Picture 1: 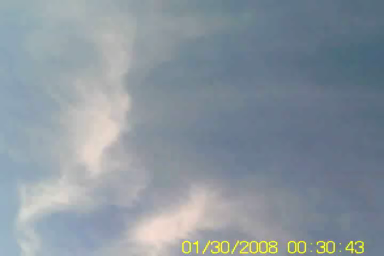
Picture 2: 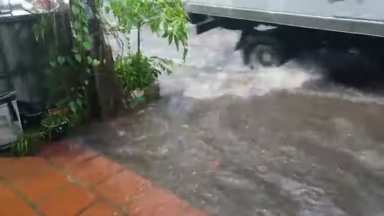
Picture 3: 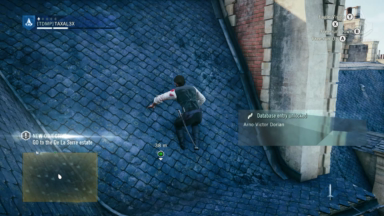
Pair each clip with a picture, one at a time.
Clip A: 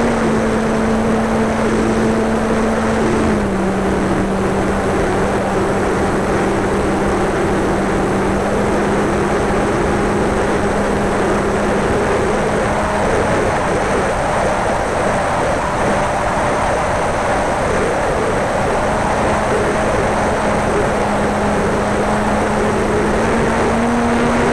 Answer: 1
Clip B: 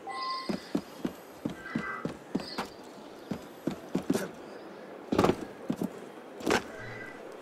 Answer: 3